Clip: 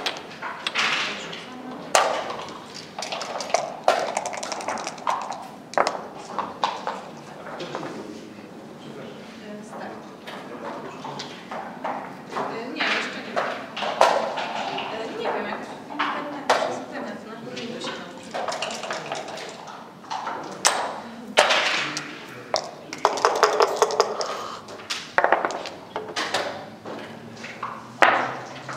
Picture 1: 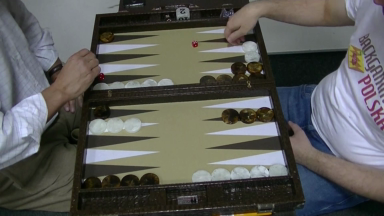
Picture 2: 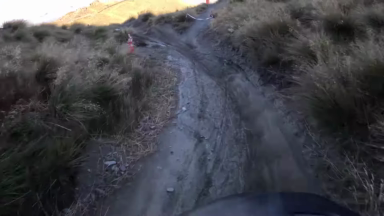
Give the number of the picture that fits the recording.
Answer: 1